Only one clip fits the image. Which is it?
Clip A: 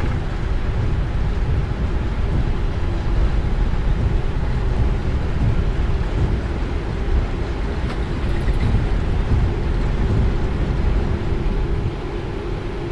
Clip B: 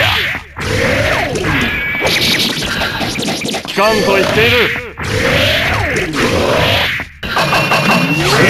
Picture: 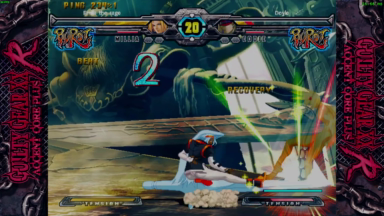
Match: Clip B